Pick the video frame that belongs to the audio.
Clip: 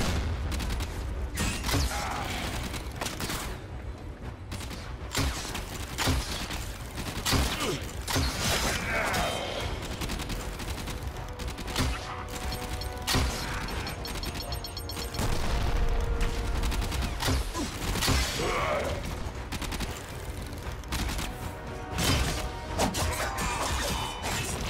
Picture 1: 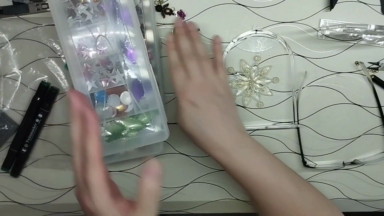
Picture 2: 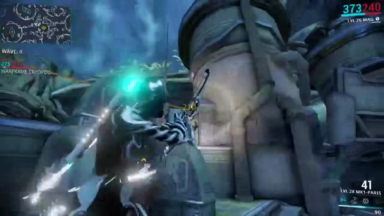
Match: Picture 2